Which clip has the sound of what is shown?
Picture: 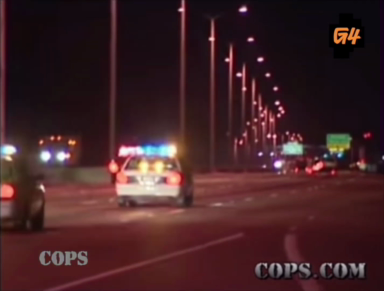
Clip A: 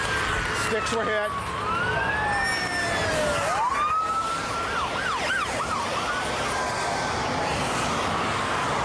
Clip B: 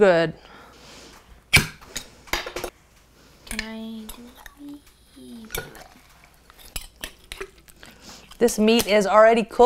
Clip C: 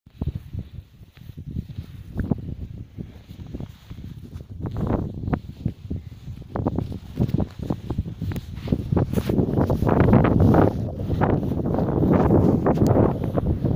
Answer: A